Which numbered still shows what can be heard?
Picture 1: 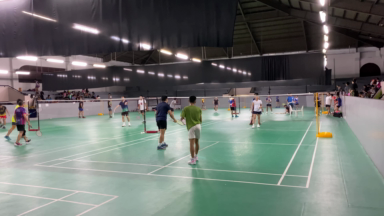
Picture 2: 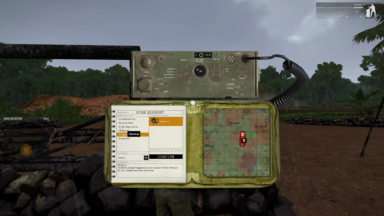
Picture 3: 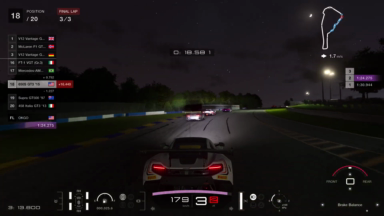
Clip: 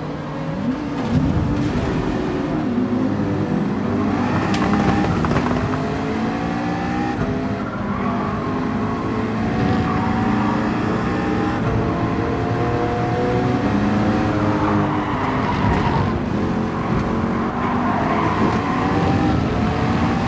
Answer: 3